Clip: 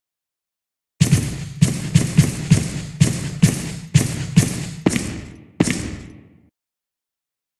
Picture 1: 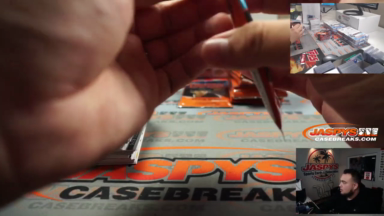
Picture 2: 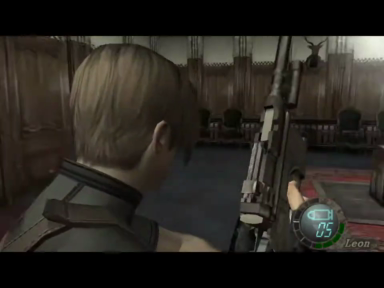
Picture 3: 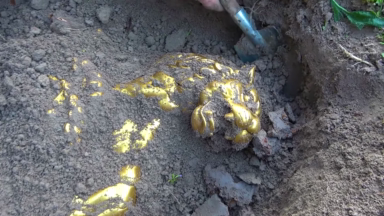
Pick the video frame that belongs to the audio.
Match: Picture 2